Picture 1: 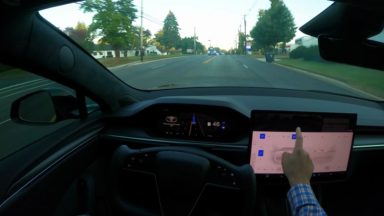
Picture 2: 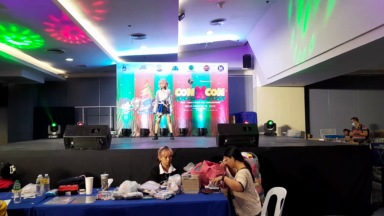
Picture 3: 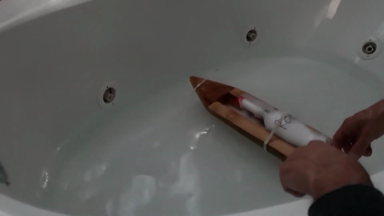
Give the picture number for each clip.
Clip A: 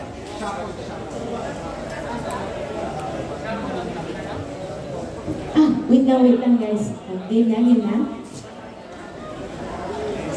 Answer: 2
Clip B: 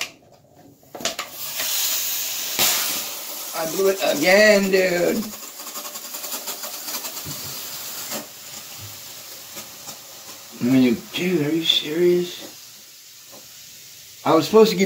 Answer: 3